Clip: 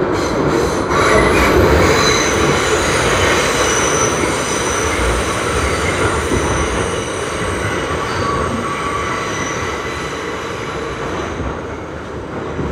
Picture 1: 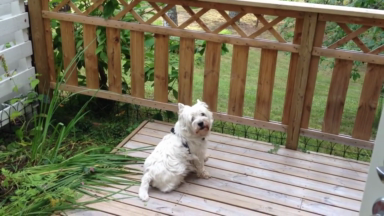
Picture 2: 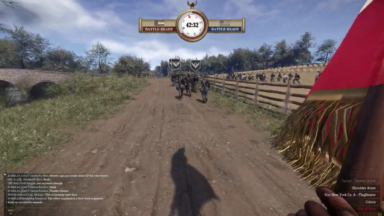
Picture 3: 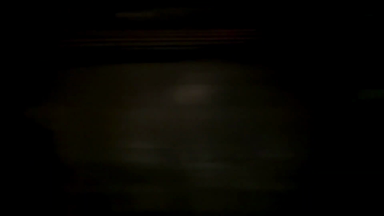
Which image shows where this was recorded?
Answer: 3